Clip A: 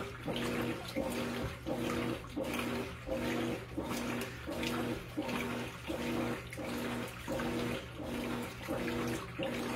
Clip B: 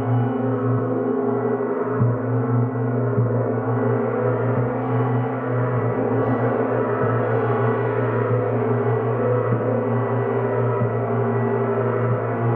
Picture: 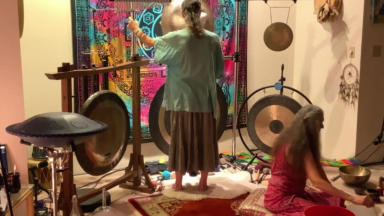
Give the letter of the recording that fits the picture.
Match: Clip B